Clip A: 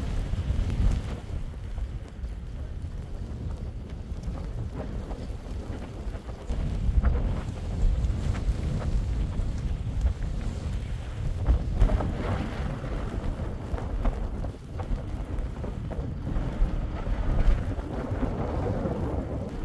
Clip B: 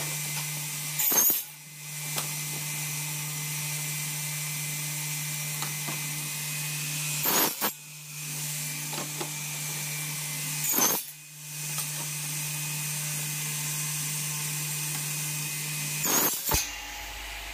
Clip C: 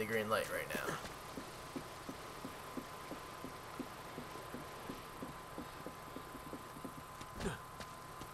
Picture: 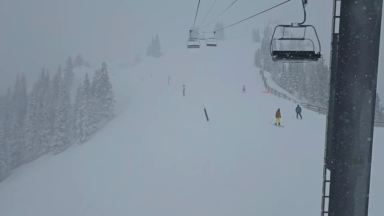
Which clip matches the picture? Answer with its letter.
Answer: A